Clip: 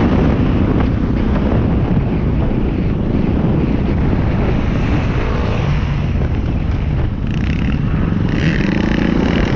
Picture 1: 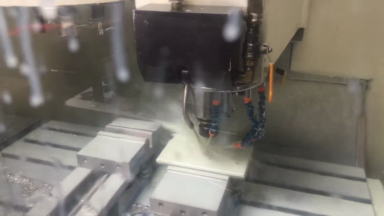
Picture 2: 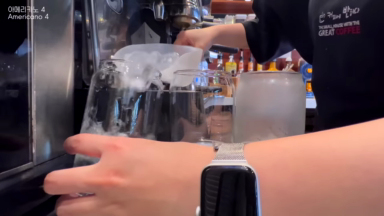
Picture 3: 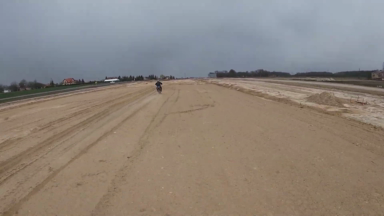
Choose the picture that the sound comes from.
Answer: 3